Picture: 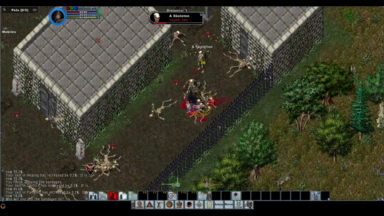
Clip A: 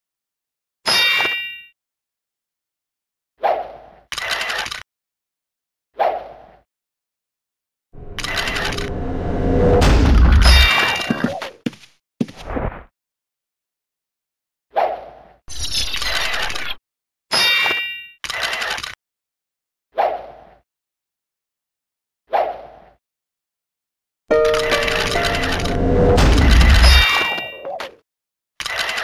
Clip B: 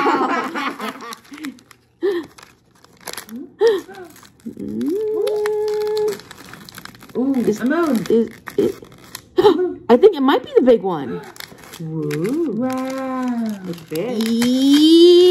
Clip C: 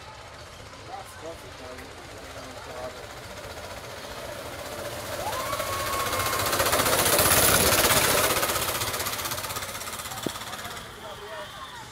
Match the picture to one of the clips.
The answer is A